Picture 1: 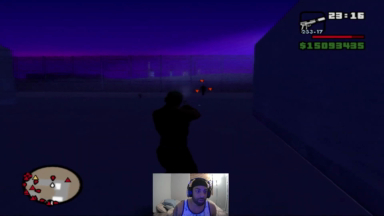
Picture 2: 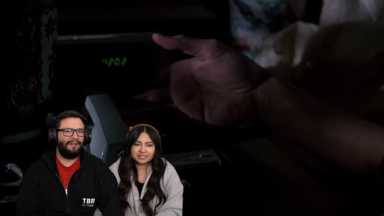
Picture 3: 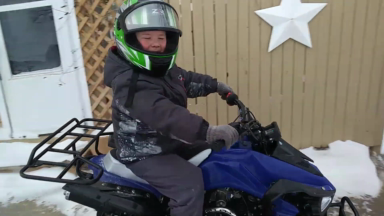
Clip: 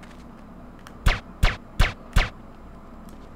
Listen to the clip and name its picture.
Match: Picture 1